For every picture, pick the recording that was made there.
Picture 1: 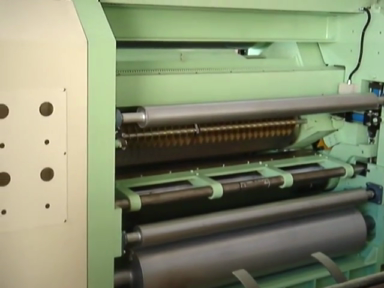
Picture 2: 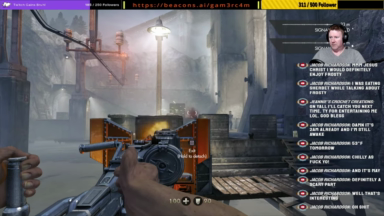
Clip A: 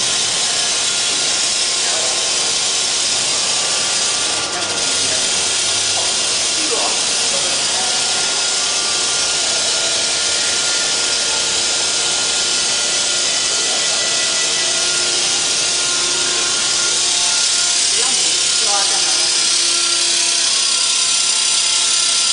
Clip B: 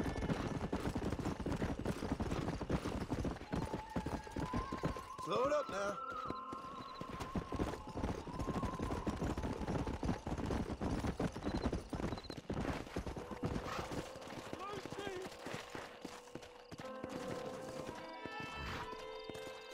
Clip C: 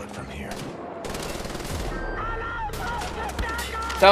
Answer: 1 A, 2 C